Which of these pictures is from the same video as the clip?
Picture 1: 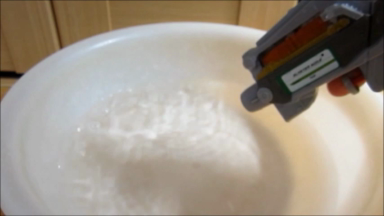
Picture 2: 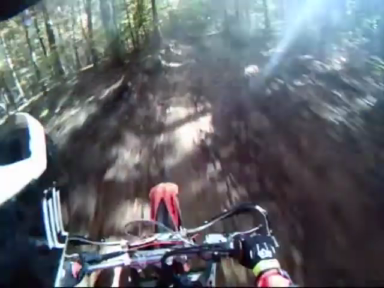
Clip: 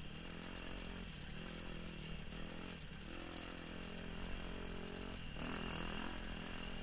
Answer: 2